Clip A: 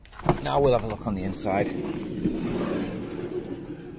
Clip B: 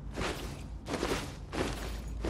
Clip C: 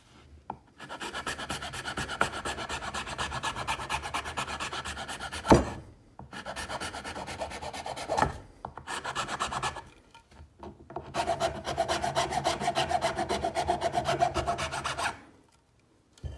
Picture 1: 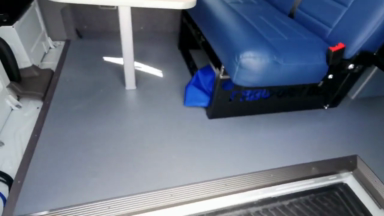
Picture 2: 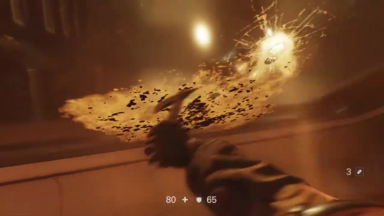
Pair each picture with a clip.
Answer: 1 A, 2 B